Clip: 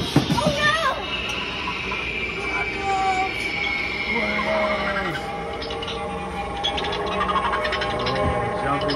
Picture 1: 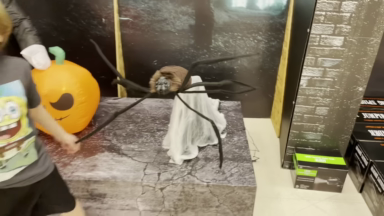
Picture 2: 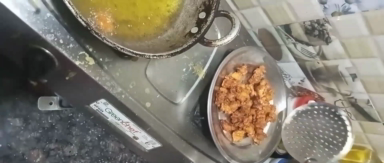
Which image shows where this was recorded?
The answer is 1